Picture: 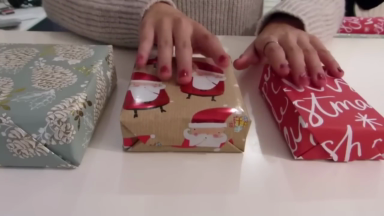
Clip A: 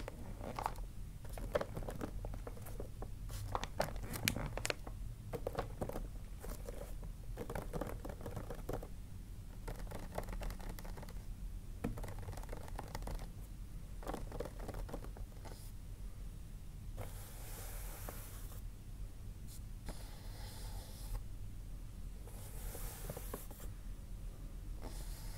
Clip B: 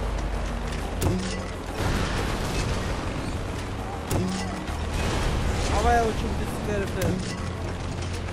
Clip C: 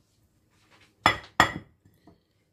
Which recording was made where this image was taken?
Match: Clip A